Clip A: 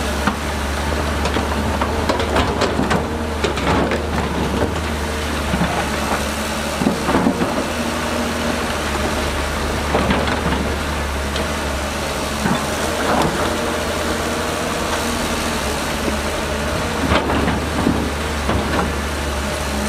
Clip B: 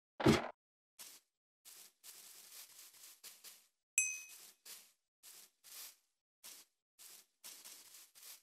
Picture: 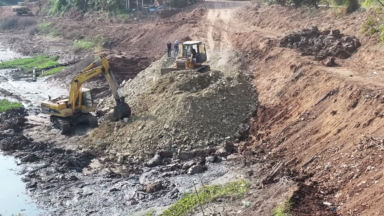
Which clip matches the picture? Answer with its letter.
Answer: A